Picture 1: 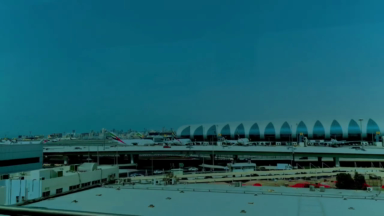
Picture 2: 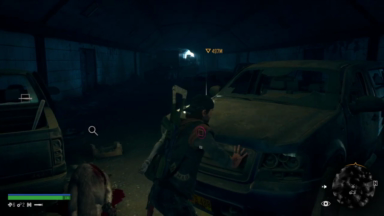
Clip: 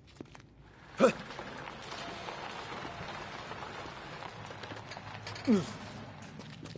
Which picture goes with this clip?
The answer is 2